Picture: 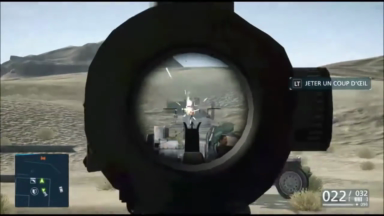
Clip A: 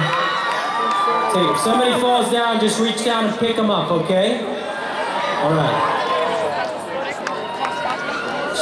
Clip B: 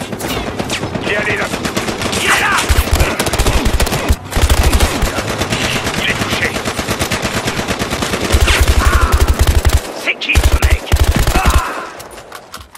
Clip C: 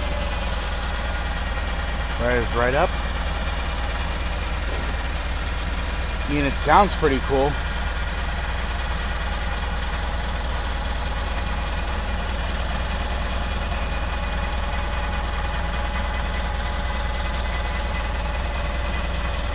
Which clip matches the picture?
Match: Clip B